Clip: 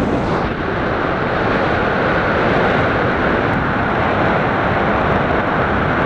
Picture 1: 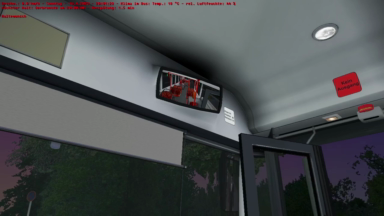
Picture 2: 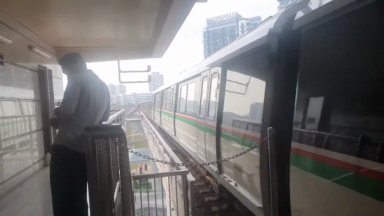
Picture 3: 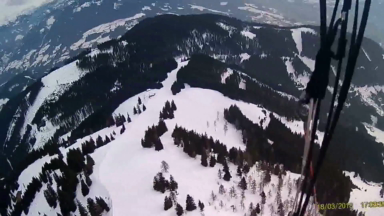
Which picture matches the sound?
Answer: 3